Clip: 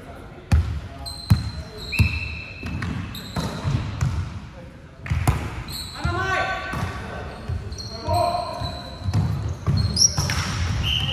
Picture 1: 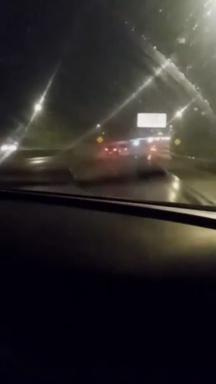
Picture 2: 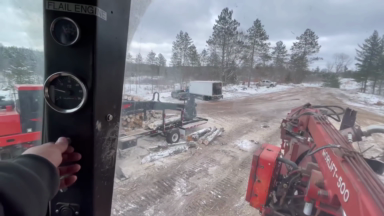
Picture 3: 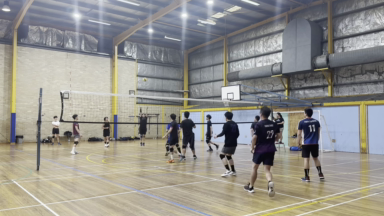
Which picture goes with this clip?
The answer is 3